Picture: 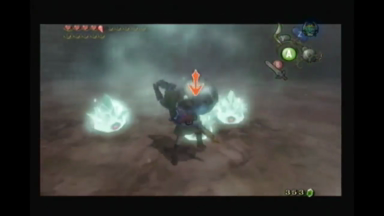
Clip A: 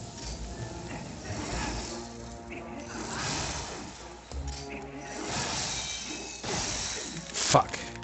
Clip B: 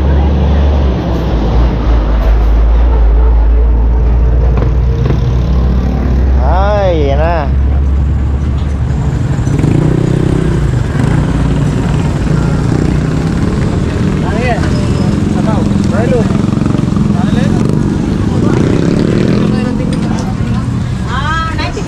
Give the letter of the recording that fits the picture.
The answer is A